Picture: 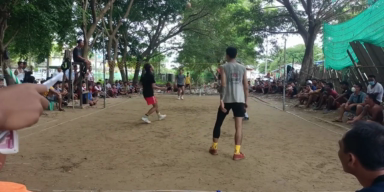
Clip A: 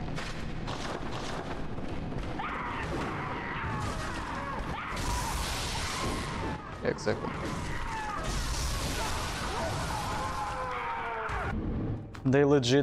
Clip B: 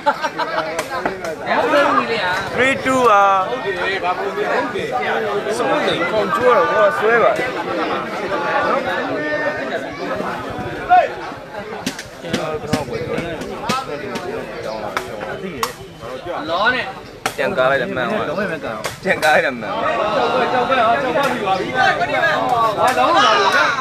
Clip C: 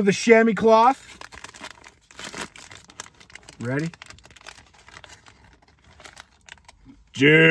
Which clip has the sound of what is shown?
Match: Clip B